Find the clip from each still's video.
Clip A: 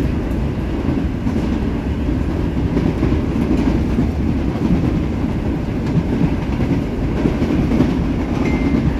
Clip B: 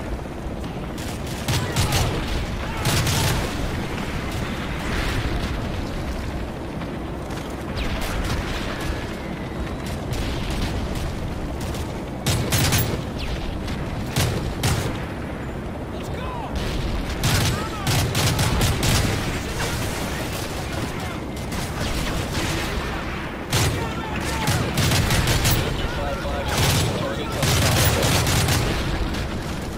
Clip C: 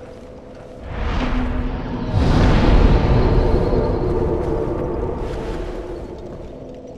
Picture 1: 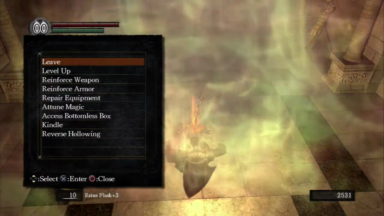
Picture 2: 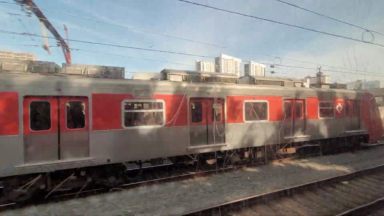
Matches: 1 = C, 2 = A